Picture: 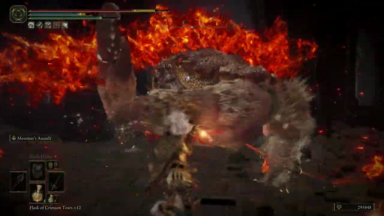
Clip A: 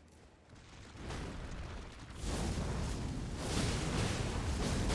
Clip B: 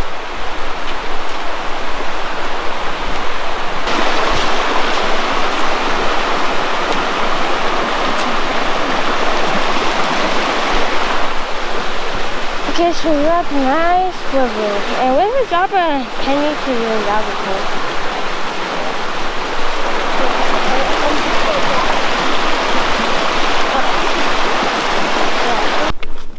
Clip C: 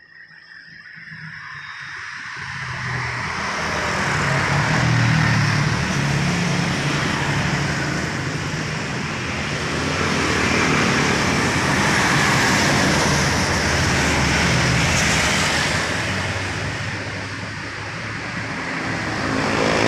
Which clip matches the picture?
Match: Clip A